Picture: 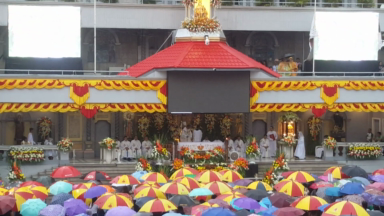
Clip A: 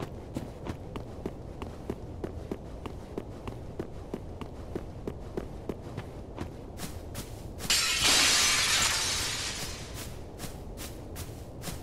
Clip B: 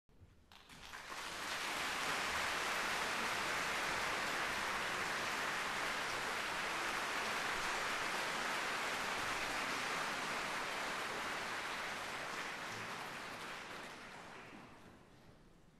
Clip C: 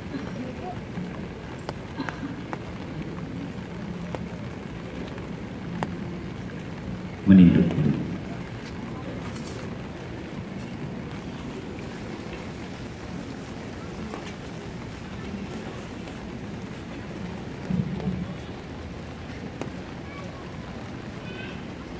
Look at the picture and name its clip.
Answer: C